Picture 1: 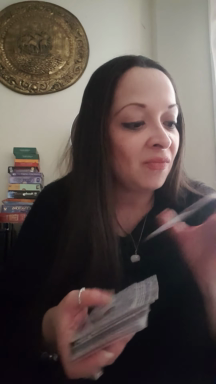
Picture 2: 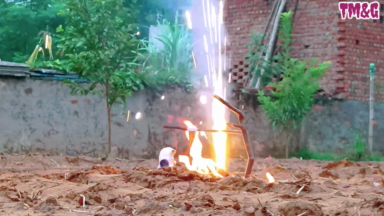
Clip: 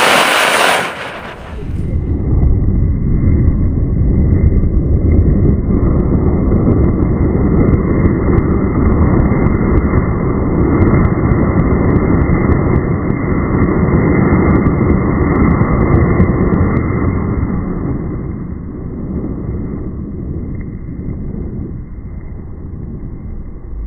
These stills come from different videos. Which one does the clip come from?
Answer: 2